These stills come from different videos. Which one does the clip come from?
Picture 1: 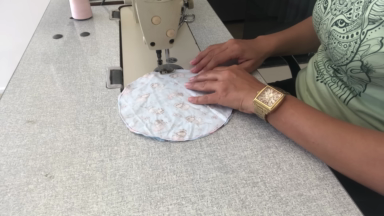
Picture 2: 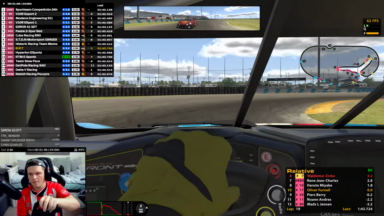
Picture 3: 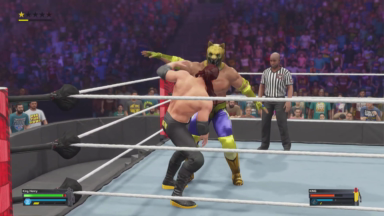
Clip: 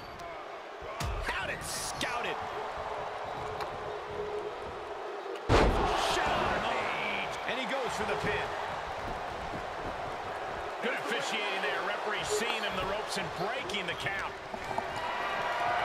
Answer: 3